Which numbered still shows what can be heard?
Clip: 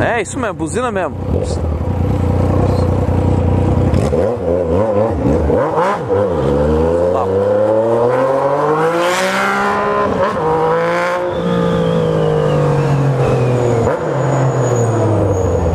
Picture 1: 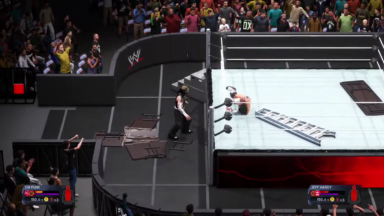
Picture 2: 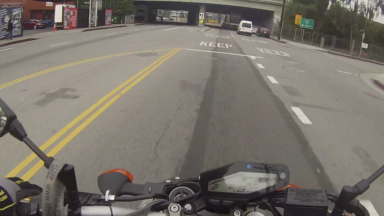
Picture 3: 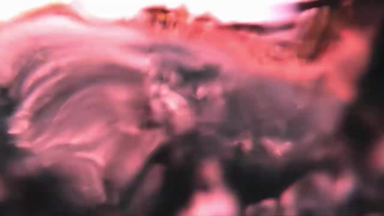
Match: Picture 2